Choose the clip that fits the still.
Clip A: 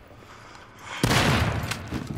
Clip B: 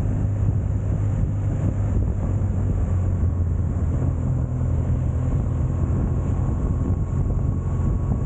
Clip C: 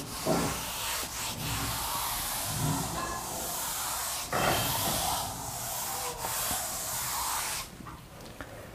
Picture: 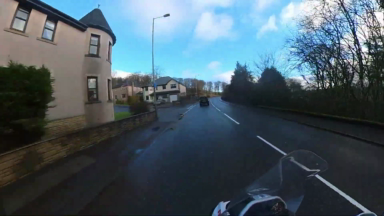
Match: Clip B